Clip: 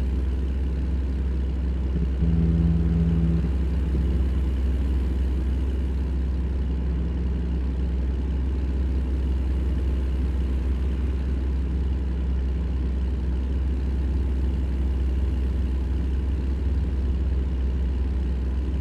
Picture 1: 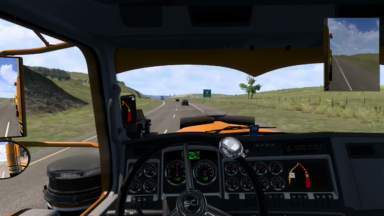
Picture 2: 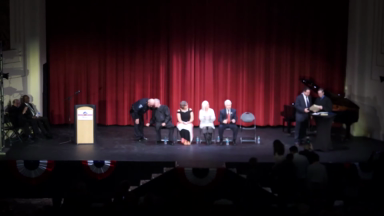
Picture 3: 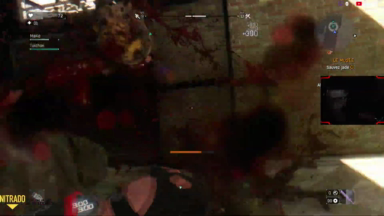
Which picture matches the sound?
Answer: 1